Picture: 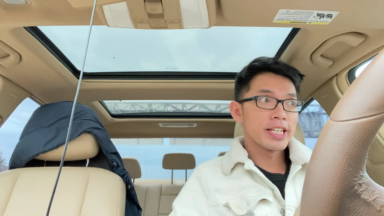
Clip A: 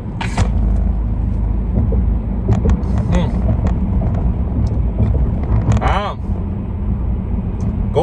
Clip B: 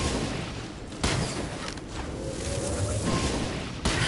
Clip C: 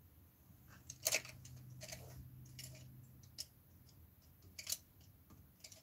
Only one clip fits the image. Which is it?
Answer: A